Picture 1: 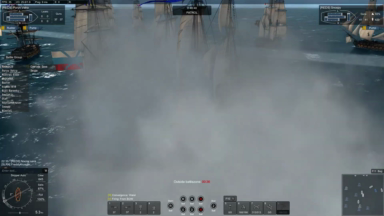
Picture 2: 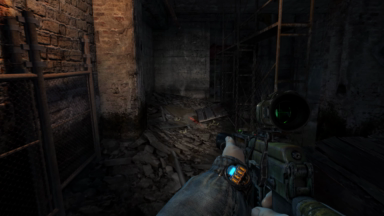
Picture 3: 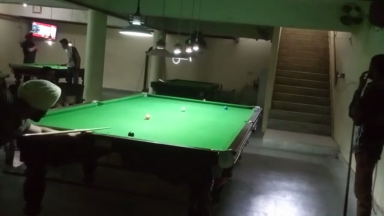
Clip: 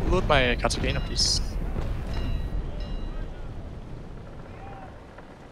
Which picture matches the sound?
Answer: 1